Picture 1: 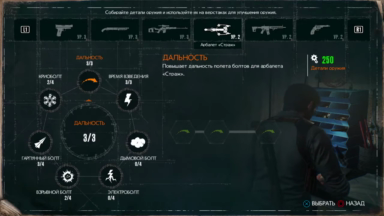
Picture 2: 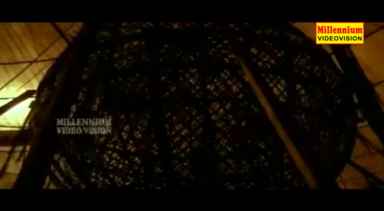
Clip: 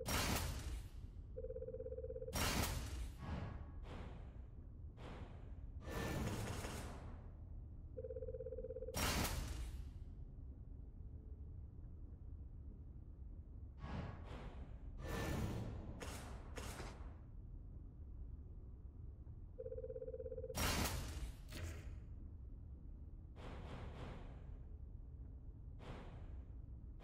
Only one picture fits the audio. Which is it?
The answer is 1